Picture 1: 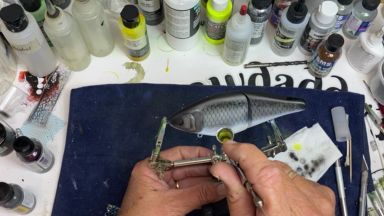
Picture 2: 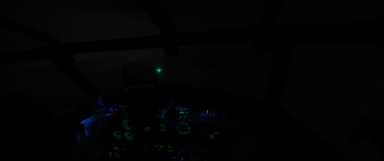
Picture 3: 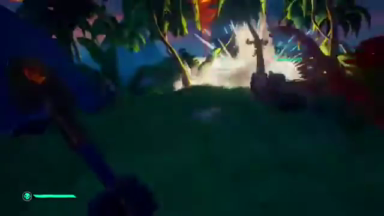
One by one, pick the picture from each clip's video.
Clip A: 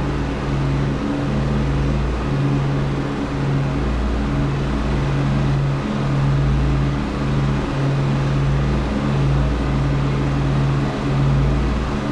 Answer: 2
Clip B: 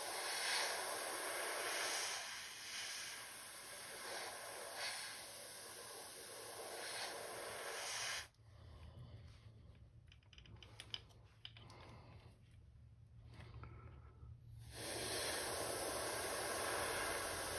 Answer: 1